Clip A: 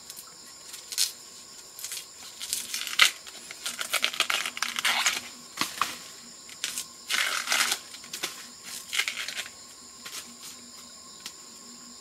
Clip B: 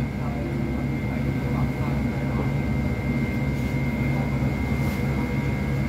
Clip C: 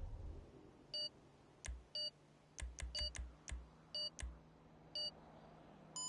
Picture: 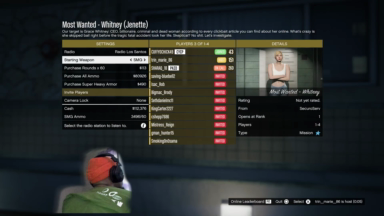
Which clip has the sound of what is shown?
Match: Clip C